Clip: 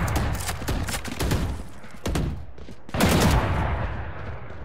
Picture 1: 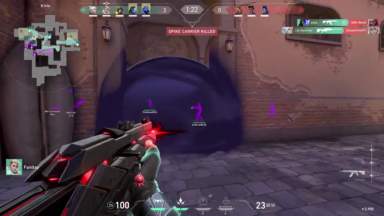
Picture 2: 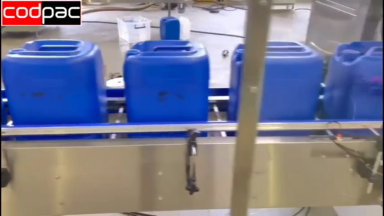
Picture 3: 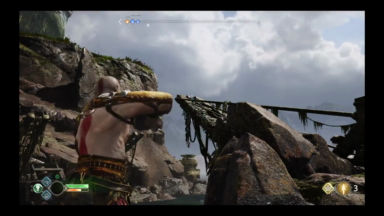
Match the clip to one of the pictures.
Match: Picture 1